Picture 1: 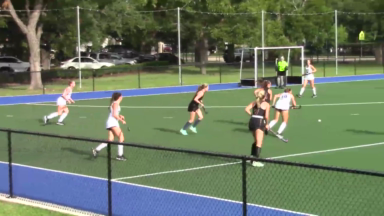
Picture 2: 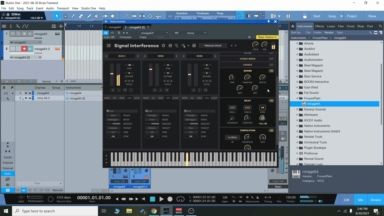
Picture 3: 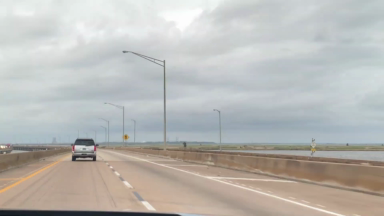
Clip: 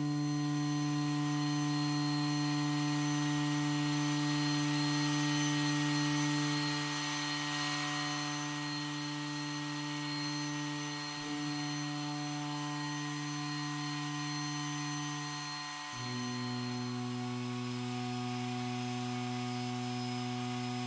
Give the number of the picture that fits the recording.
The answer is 2